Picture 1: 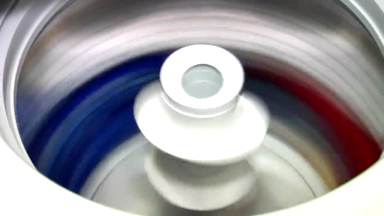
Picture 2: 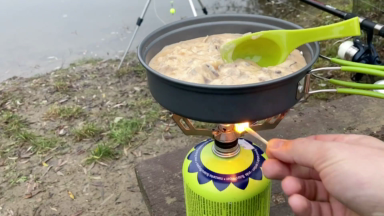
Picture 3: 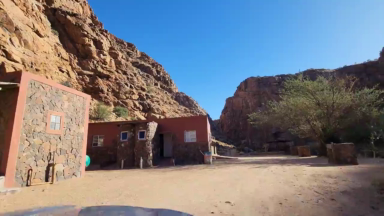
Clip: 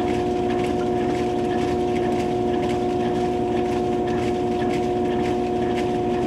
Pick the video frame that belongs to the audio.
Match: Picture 1